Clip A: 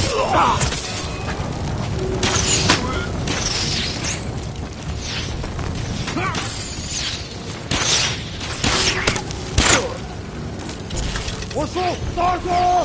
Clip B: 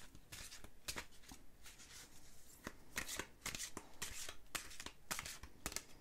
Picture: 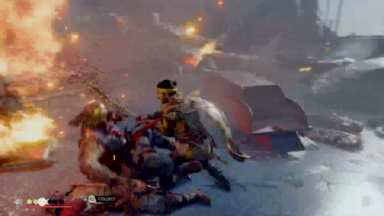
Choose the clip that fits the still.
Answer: A